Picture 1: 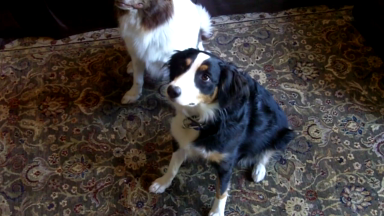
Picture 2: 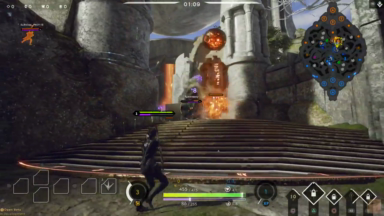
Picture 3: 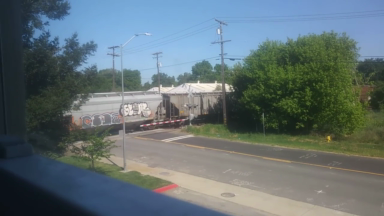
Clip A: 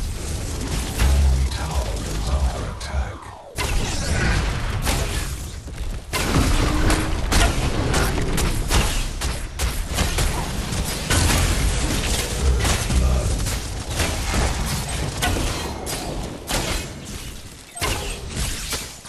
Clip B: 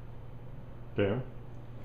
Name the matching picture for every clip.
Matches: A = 2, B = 1